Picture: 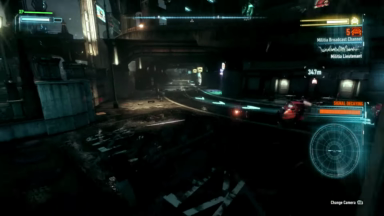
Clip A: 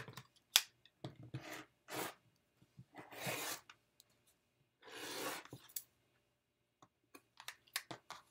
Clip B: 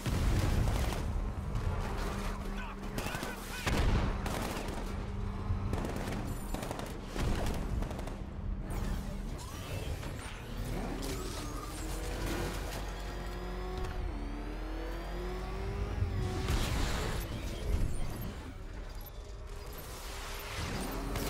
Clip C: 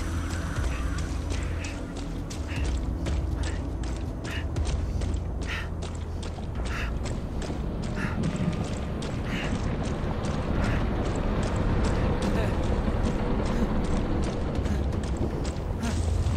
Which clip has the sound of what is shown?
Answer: B